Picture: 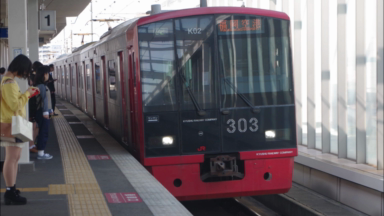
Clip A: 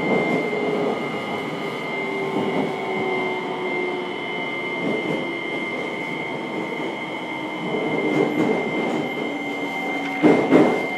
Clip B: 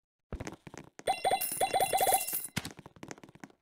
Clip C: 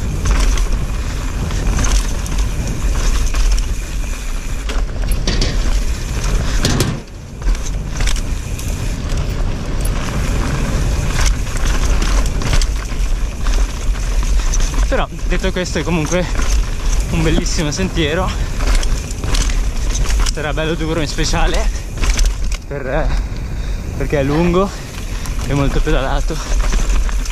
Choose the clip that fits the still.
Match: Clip A